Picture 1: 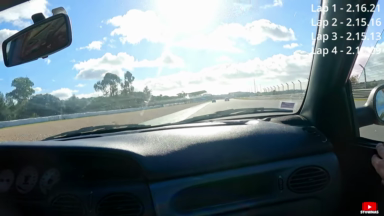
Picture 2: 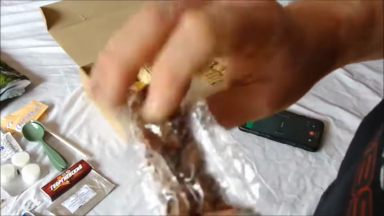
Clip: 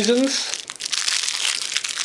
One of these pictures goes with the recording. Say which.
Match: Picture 2